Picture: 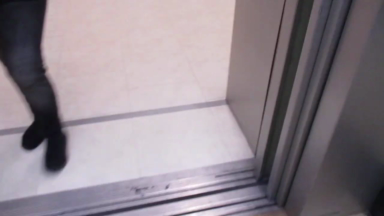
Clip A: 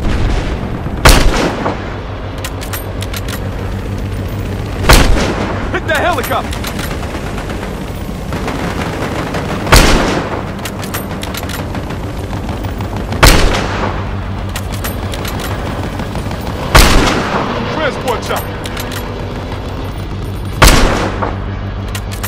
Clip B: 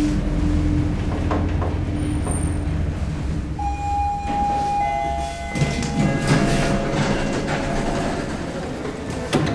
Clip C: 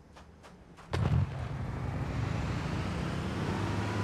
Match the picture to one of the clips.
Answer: B